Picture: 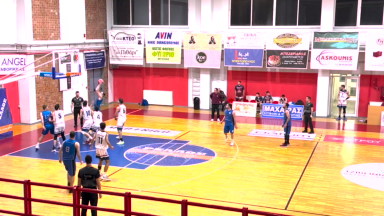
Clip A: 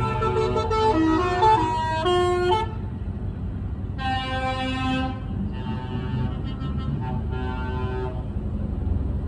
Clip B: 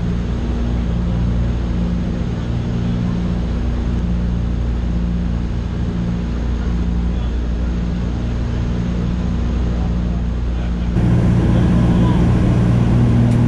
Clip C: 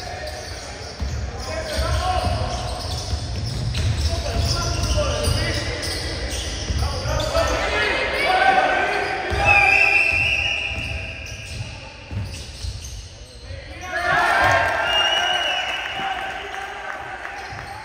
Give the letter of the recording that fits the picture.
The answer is C